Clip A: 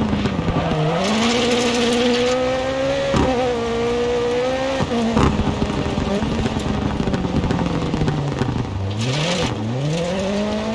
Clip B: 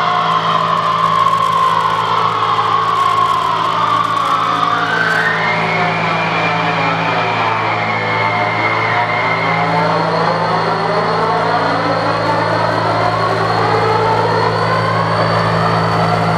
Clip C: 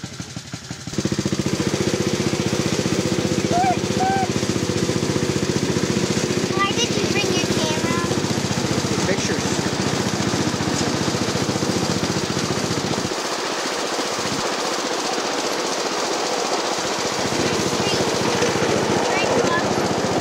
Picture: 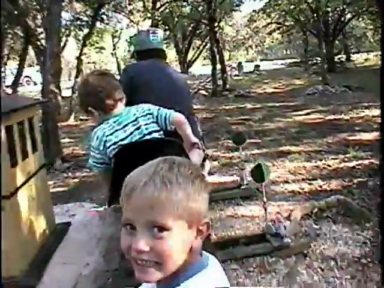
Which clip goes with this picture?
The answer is C